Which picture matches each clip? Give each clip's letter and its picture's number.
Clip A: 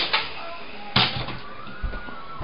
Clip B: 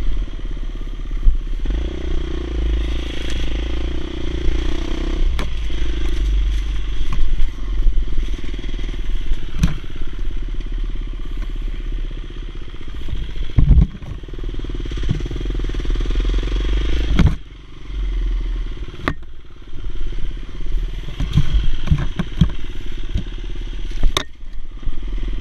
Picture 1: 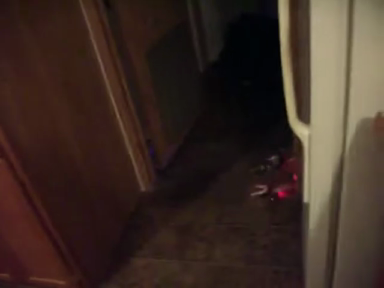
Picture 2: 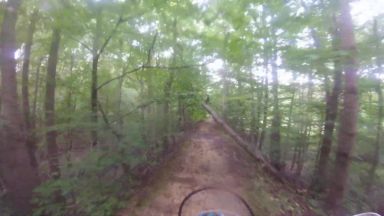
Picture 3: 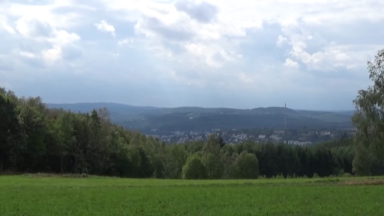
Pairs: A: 1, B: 2